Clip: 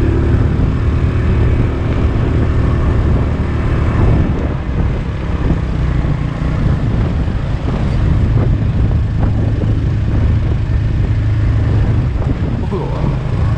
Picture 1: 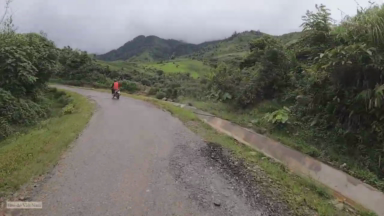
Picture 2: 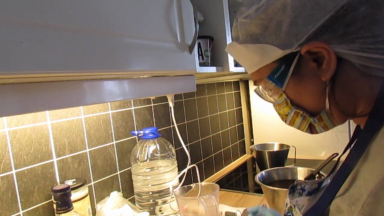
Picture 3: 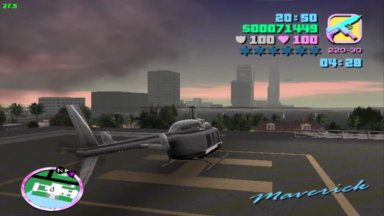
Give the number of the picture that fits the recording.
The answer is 1